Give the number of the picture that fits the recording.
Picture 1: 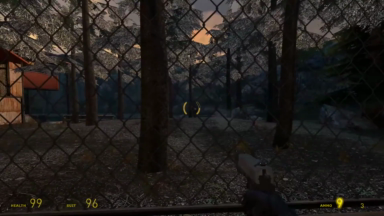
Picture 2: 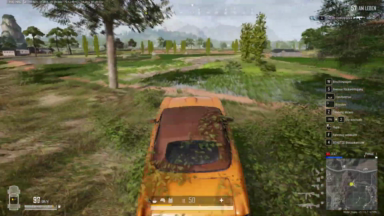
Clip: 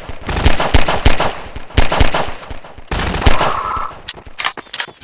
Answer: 1